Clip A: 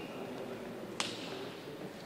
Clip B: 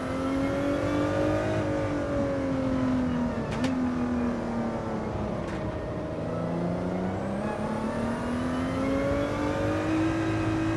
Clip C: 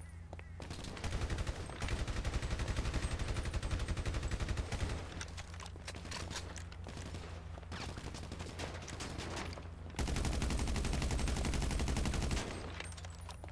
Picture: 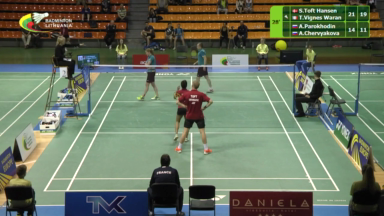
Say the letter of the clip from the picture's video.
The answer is A